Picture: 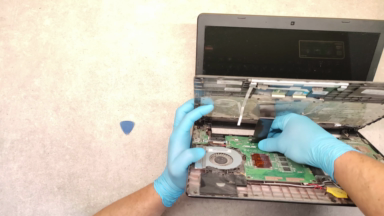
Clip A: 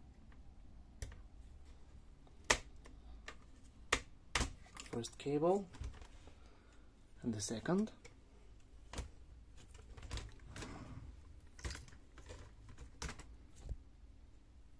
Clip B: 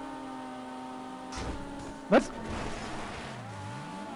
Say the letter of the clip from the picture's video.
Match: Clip A